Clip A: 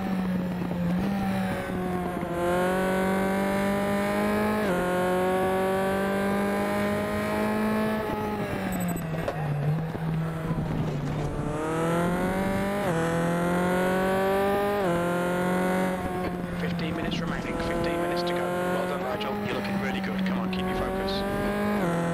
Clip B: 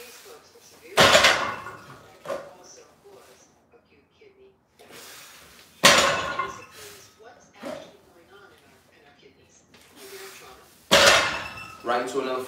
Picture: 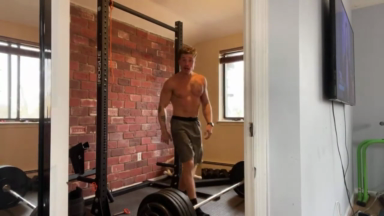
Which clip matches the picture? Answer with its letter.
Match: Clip B